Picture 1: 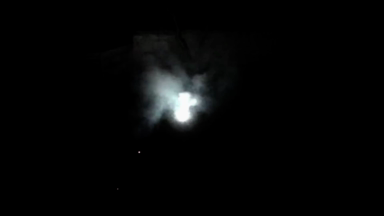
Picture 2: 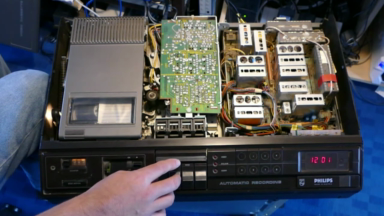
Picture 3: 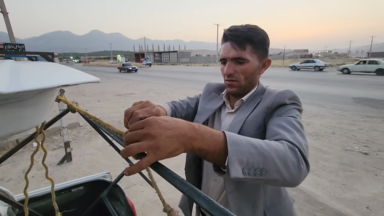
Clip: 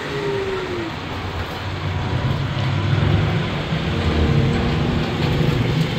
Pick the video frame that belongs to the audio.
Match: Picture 3